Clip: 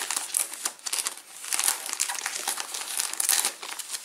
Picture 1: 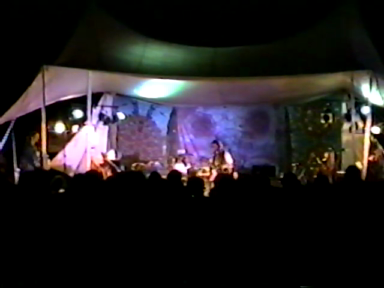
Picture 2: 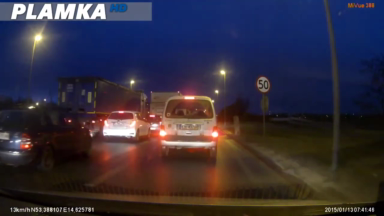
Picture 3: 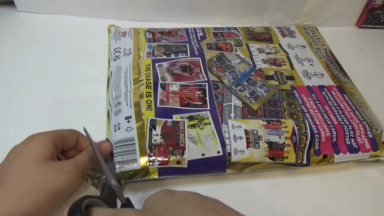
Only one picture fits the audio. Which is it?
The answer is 3